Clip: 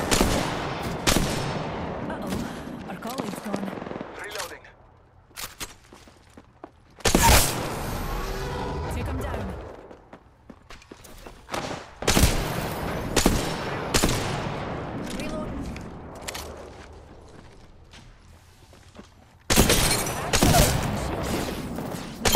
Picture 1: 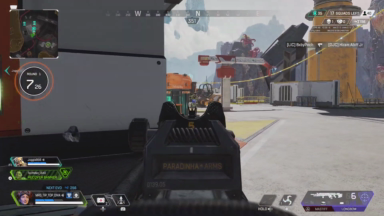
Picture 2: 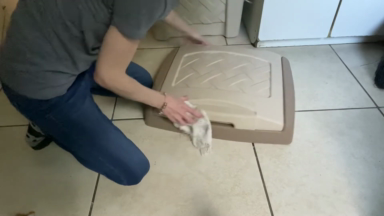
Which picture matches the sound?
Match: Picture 1